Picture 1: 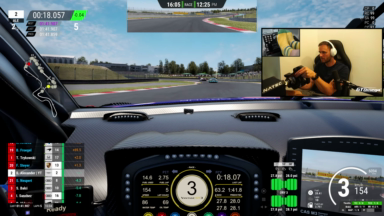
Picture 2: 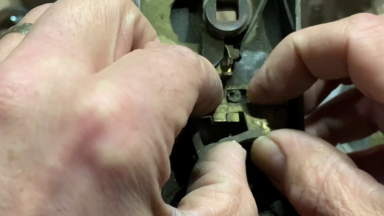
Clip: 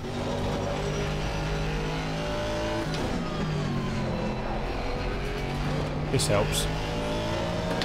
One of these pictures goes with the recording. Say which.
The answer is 1